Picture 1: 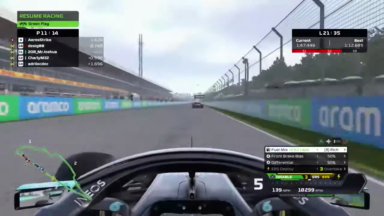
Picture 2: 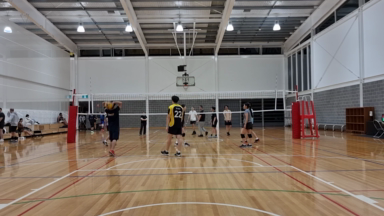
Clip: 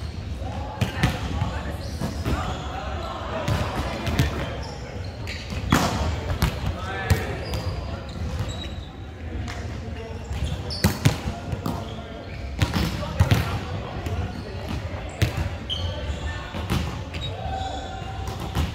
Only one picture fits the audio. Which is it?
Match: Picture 2